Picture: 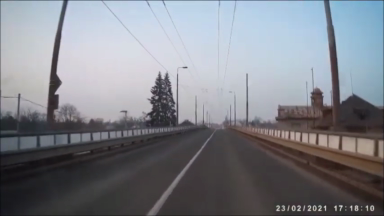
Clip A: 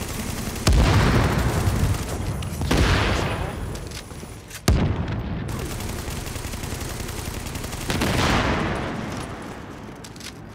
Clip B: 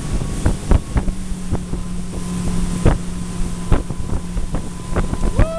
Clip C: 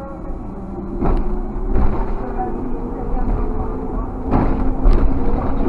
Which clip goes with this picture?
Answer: C